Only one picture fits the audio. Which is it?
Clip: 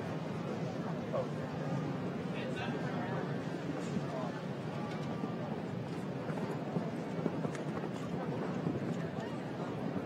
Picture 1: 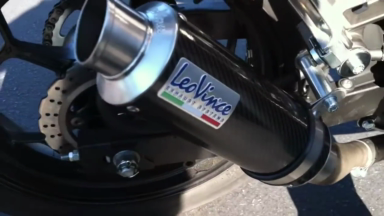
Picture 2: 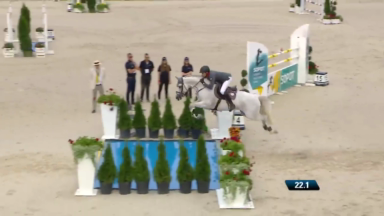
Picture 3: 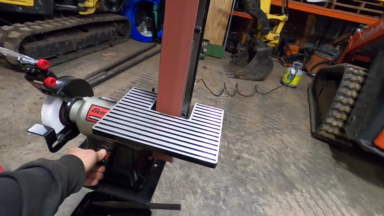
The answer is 2